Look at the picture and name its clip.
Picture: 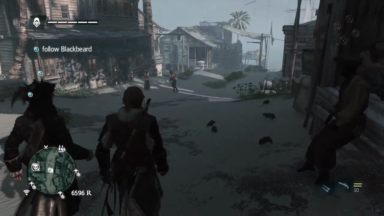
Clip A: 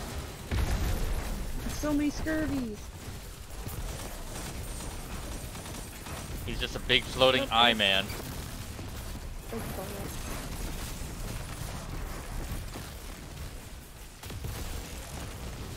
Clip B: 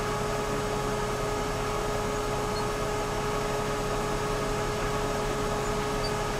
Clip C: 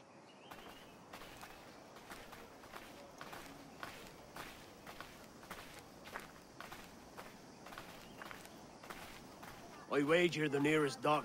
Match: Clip C